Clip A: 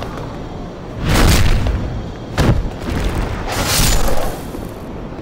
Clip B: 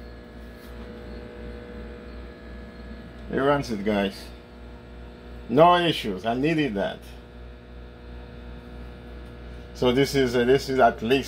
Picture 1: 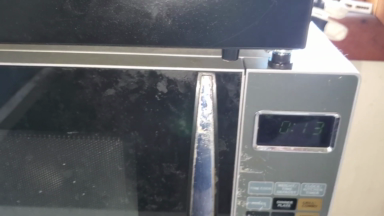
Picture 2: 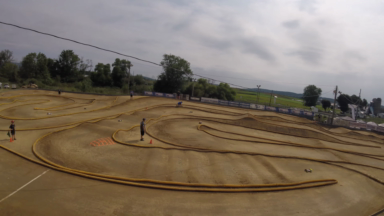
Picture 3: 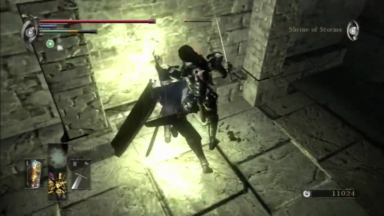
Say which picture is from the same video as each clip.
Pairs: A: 3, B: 1